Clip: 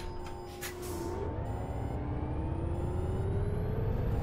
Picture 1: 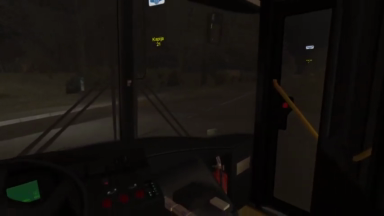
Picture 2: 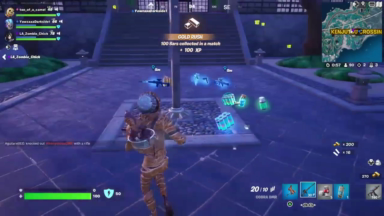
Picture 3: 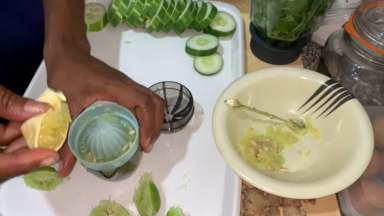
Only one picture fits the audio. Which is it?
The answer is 1